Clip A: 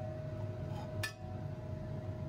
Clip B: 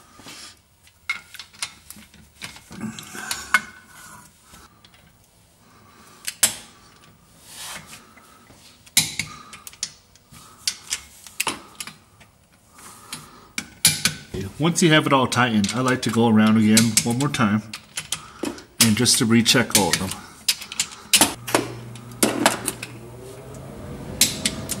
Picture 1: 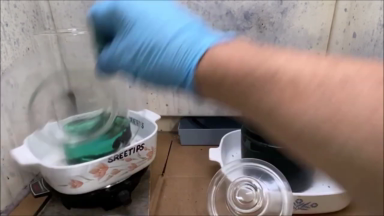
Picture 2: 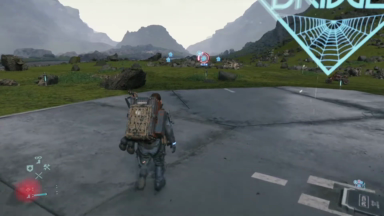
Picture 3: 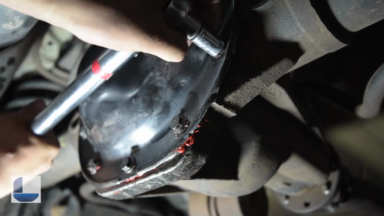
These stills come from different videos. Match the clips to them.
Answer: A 1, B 3